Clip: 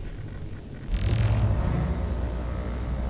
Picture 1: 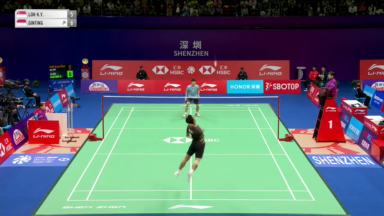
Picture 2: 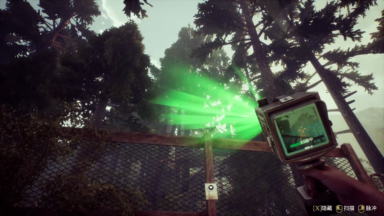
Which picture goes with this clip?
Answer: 2